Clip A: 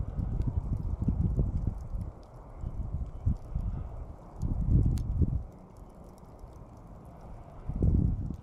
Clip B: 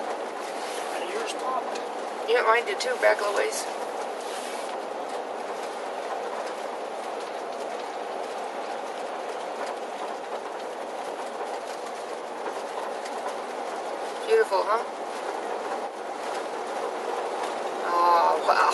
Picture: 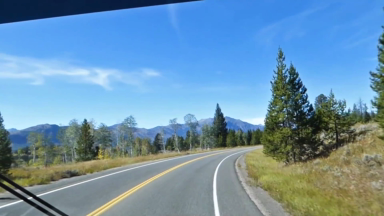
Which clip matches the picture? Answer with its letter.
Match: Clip B